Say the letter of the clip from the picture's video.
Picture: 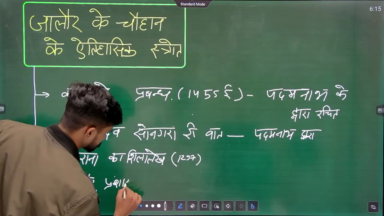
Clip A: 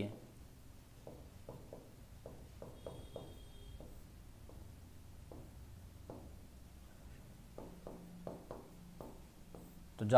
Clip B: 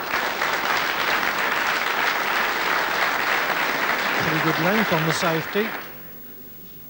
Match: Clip A